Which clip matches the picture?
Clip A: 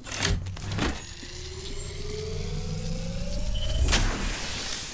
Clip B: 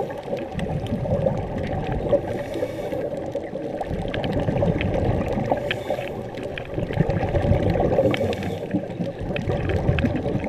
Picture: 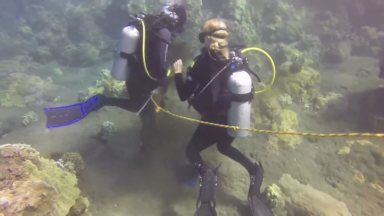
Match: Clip B